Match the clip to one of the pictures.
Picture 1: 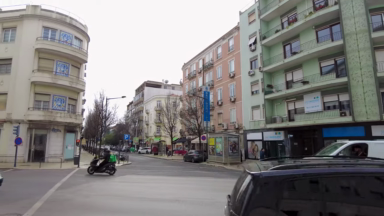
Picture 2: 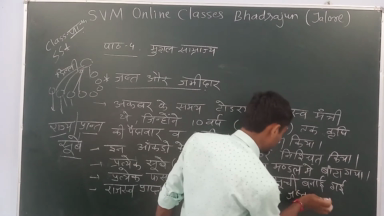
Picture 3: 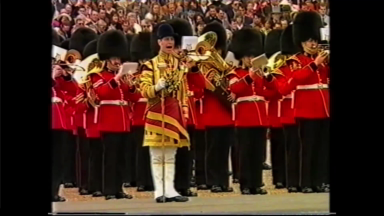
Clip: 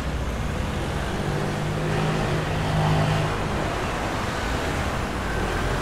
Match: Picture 1